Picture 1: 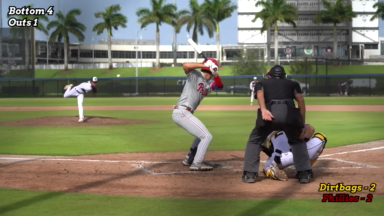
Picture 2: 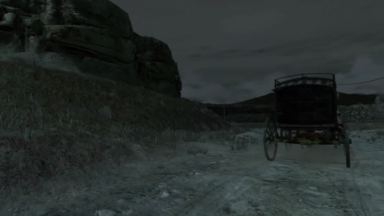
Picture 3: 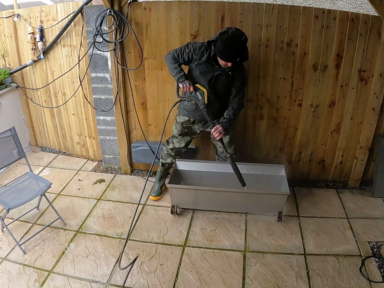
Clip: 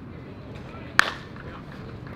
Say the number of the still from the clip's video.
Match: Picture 1